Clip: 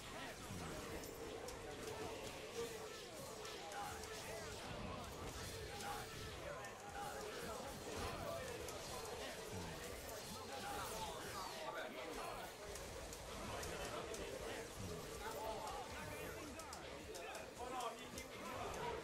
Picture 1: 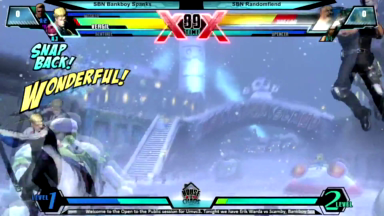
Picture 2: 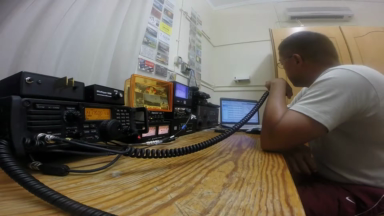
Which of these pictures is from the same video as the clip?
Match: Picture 1